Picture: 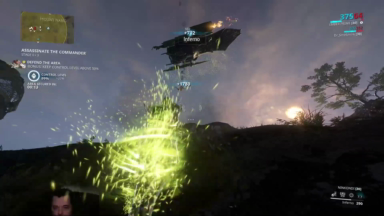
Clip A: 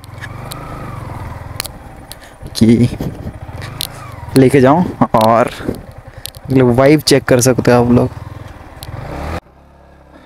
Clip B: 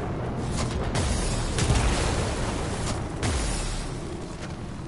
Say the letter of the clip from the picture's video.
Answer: B